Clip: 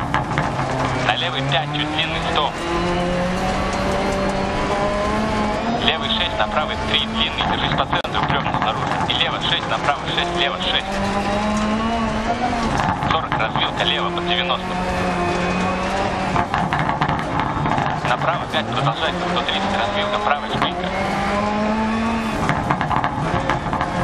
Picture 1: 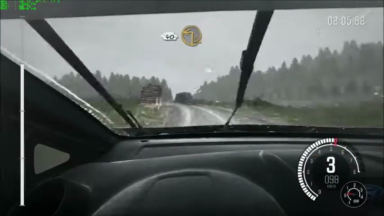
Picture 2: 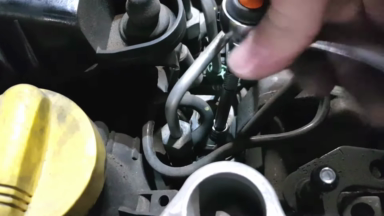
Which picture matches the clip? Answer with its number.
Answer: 1